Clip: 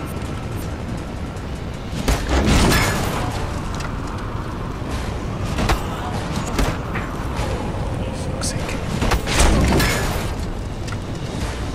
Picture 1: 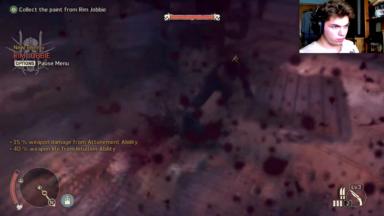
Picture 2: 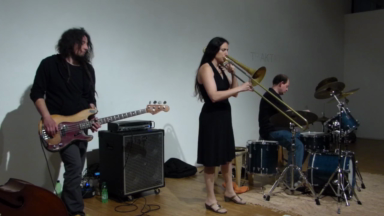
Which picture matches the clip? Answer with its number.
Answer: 1